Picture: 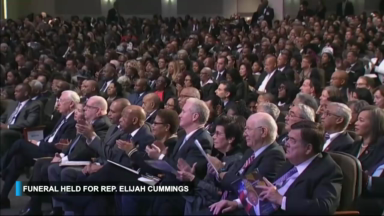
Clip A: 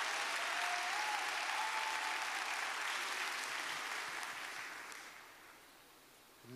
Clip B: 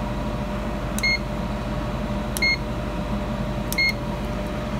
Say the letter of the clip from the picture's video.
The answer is A